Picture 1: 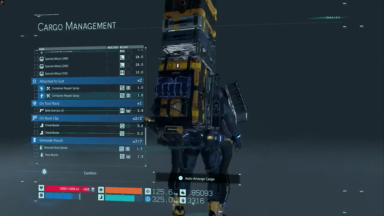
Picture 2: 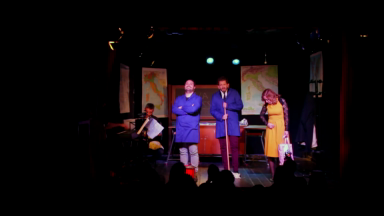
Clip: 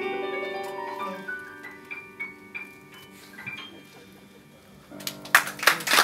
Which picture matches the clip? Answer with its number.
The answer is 2